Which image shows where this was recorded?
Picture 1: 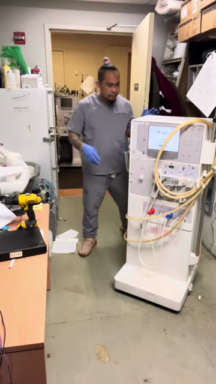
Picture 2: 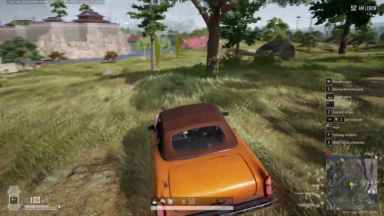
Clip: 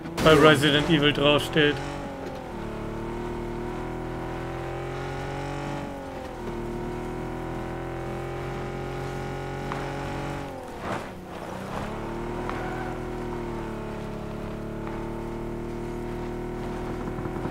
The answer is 2